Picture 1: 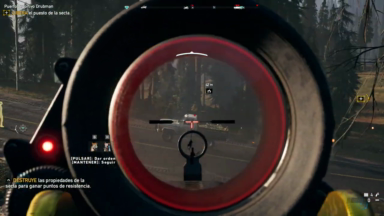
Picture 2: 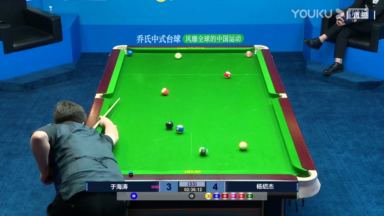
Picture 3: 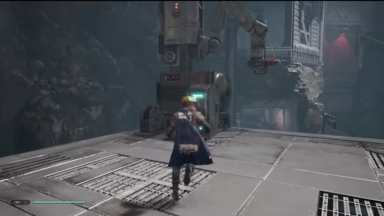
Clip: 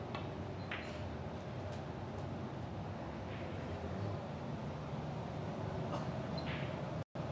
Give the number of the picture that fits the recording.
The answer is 2